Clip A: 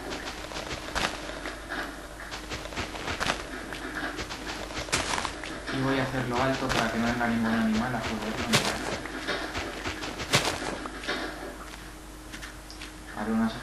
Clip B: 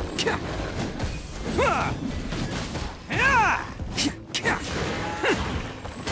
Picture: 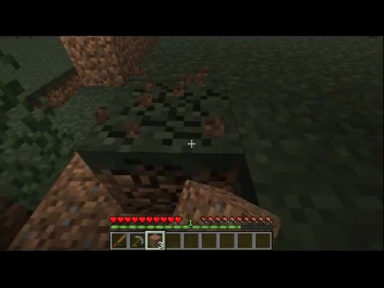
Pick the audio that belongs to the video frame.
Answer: A